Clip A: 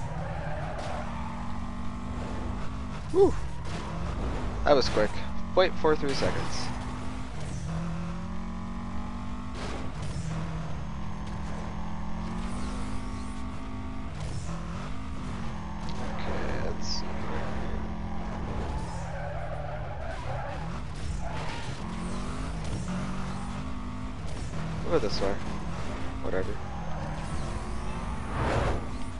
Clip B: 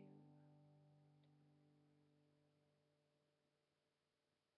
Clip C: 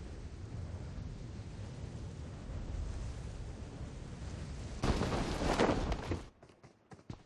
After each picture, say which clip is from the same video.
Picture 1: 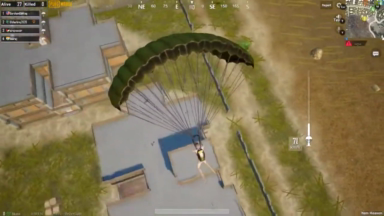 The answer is C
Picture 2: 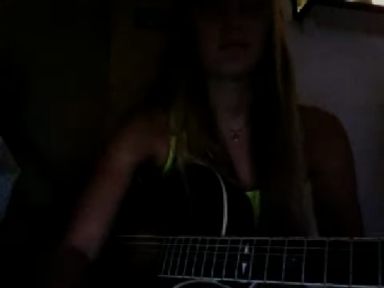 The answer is B